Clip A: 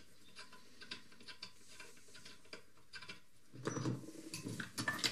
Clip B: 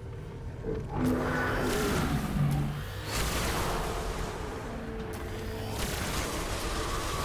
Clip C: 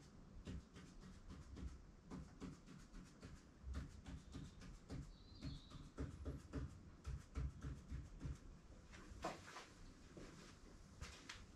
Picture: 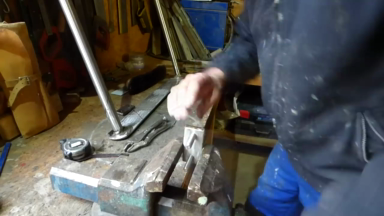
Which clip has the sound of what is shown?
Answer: A